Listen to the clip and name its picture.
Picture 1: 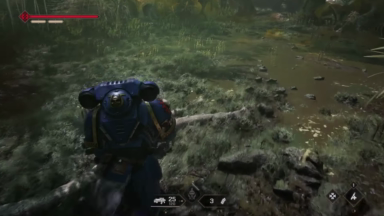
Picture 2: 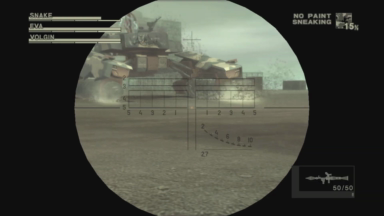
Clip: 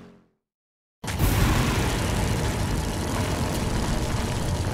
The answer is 2